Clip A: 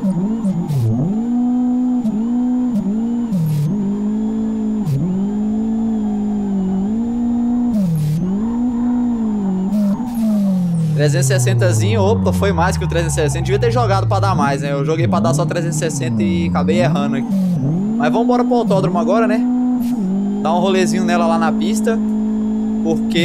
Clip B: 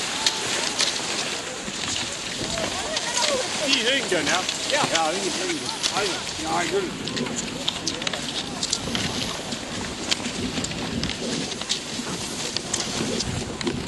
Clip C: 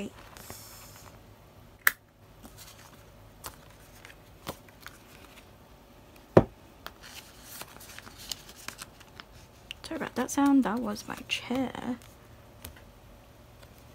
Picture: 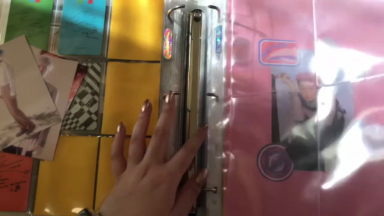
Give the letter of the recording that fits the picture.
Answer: C